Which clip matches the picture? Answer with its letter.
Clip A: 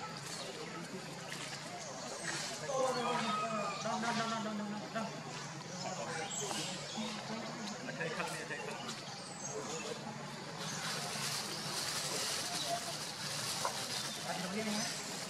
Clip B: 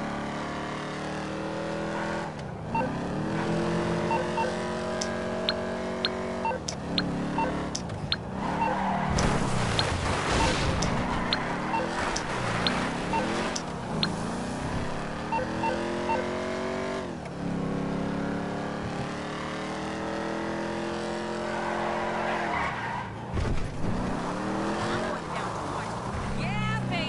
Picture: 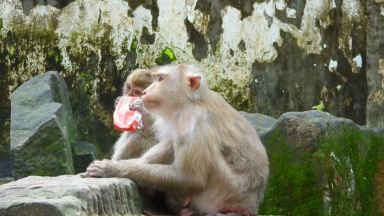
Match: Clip A